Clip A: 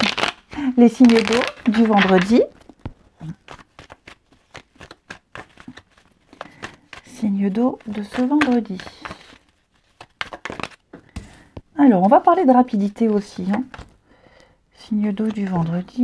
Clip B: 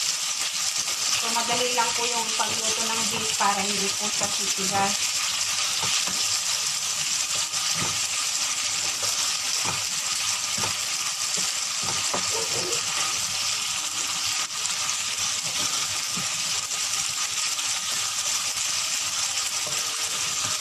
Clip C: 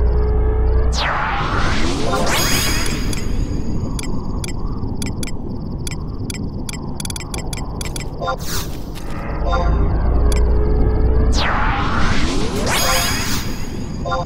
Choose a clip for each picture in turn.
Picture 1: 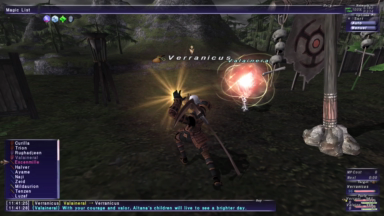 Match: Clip C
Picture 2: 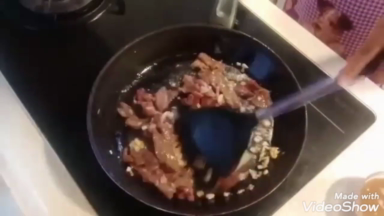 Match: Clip B